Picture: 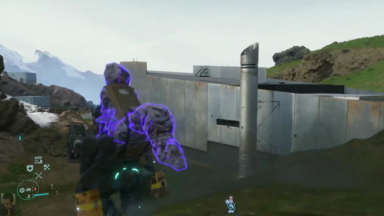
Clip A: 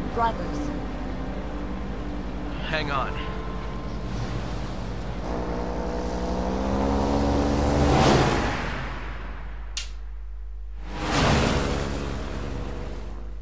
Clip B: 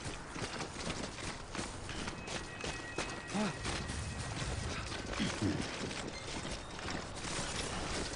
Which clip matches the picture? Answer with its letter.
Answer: B